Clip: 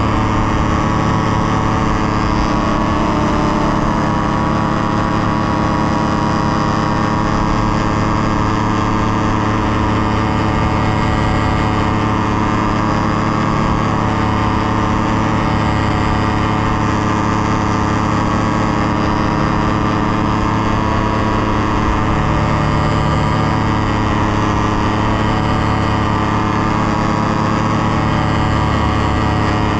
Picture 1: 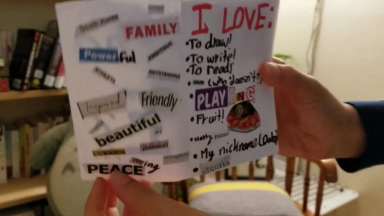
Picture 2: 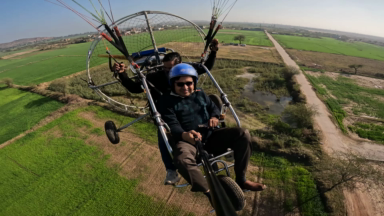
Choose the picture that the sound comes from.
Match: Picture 2